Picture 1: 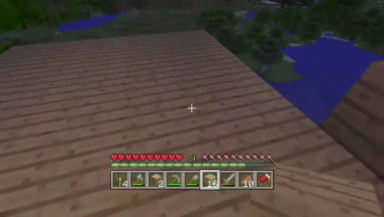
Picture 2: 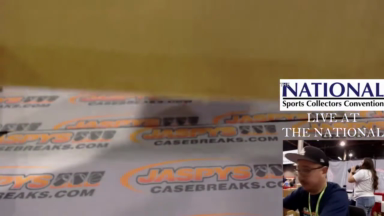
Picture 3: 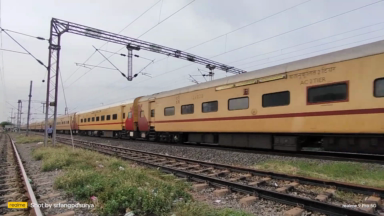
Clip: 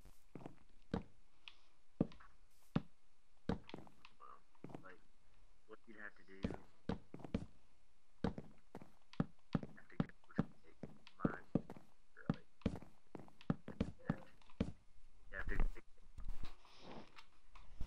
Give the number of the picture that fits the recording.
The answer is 1